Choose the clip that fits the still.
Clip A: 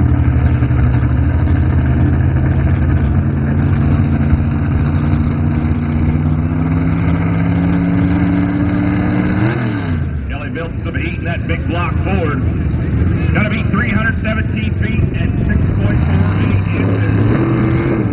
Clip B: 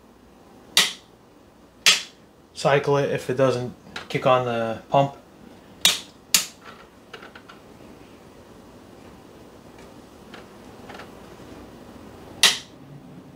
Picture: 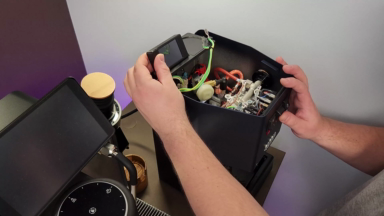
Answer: B